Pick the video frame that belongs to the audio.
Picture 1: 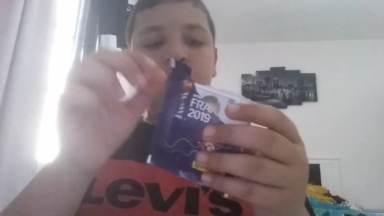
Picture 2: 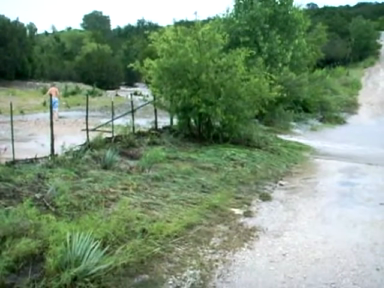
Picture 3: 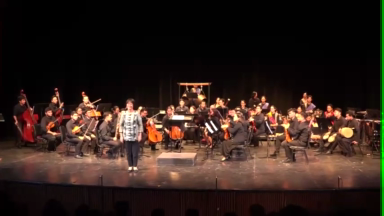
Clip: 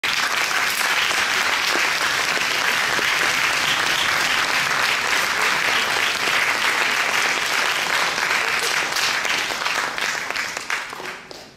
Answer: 3